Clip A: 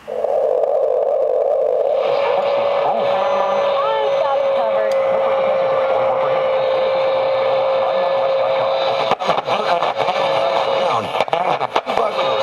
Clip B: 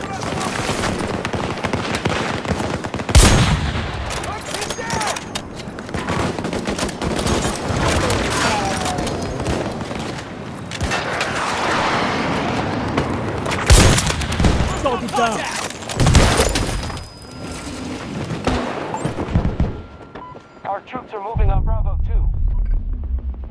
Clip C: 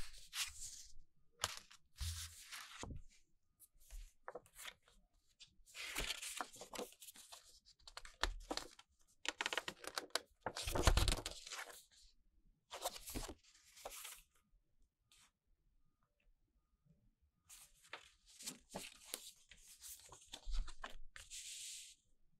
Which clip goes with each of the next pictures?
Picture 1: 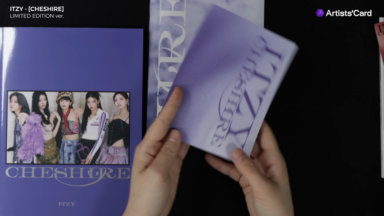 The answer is C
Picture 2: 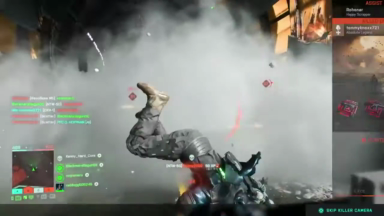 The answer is B